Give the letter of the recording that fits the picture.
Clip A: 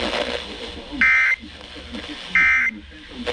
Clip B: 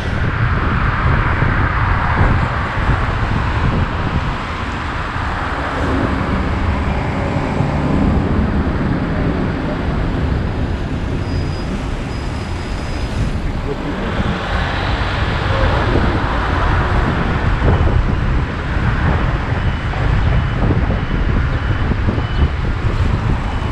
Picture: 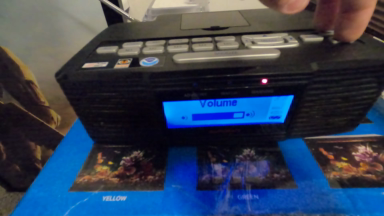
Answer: A